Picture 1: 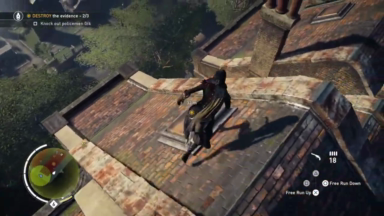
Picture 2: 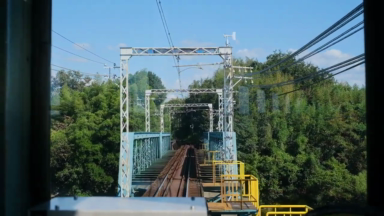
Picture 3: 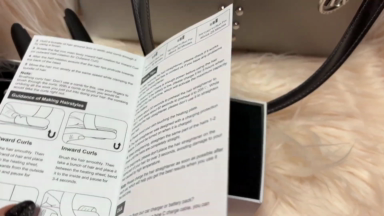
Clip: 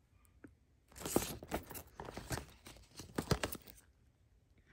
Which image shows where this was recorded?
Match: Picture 3